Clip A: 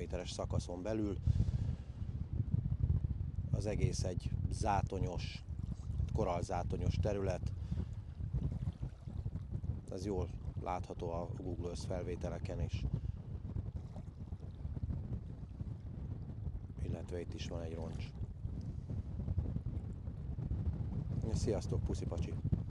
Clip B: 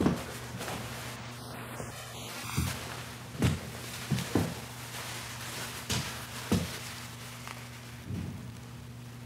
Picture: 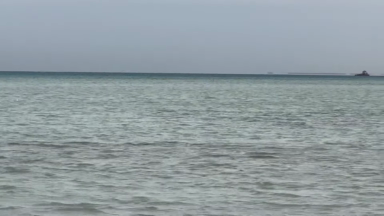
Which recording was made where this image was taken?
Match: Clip A